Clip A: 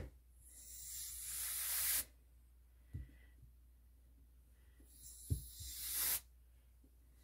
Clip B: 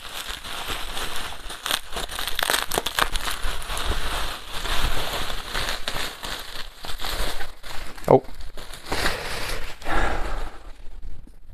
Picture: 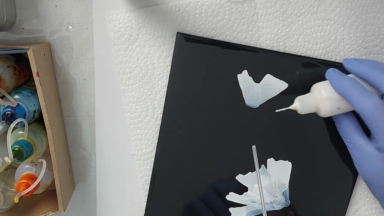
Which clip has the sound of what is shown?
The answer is A